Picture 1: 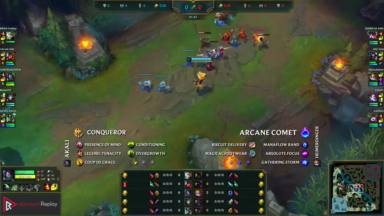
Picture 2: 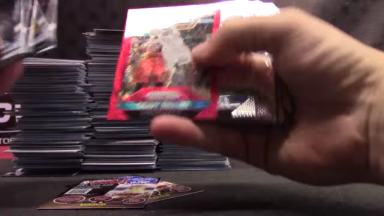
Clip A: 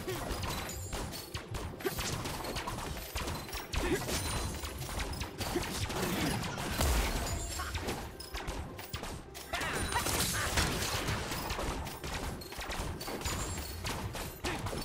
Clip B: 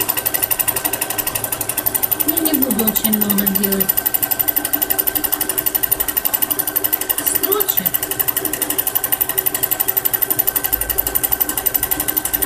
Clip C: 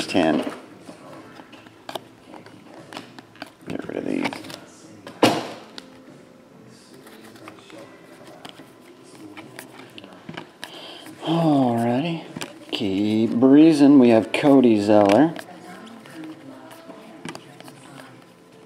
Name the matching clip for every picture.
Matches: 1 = A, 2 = C